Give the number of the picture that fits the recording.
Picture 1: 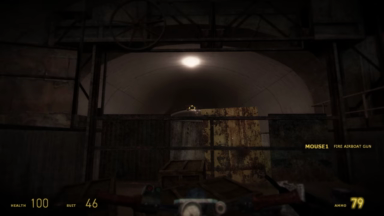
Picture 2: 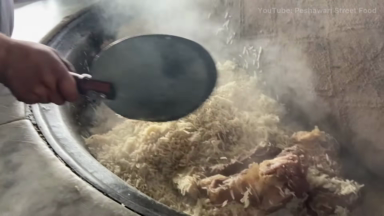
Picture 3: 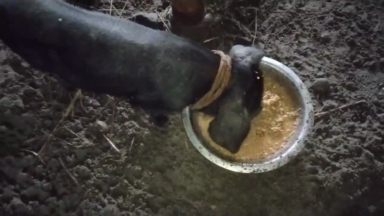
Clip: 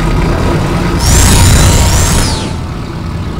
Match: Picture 1